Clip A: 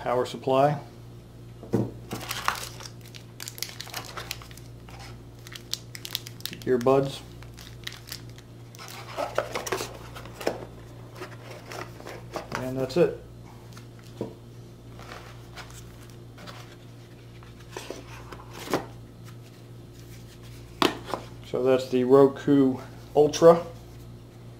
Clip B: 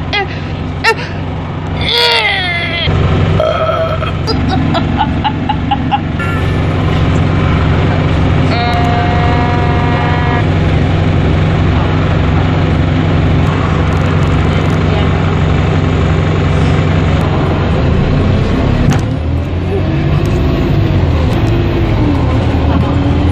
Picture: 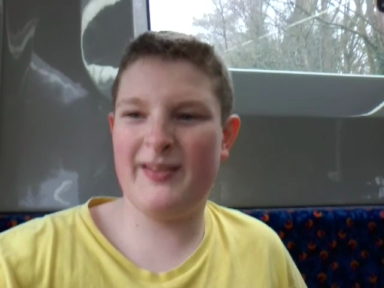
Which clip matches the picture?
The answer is B